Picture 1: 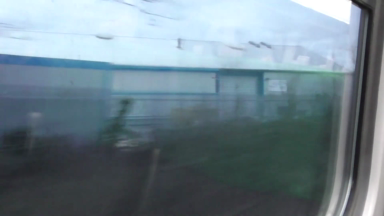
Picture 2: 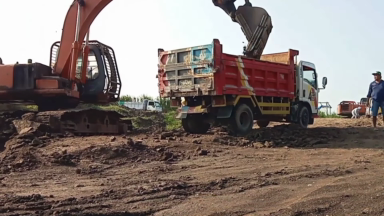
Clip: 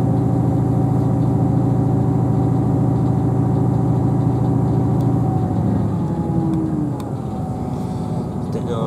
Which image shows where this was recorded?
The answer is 1